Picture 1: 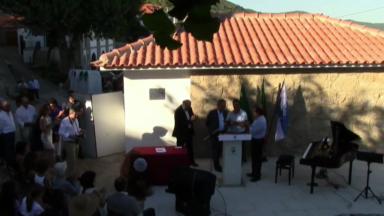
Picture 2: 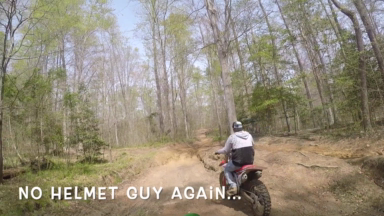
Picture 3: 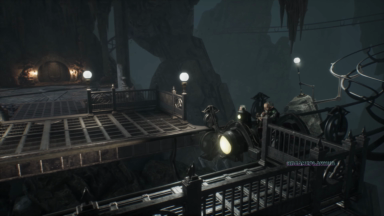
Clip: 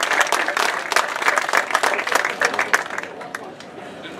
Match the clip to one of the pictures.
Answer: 1